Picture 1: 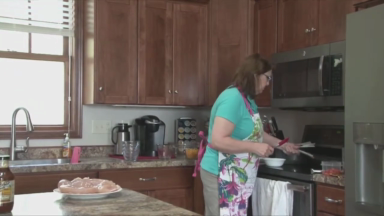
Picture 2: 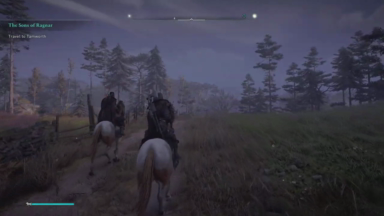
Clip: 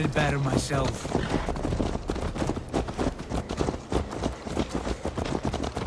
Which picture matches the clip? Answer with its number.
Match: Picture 2